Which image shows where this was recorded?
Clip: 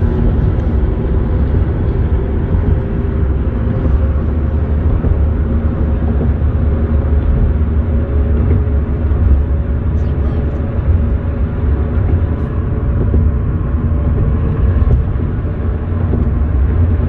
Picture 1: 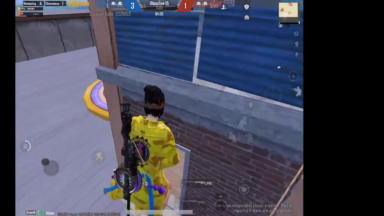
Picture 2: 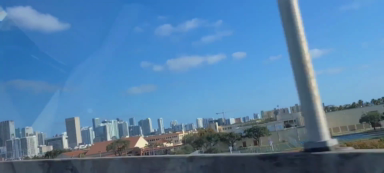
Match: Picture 2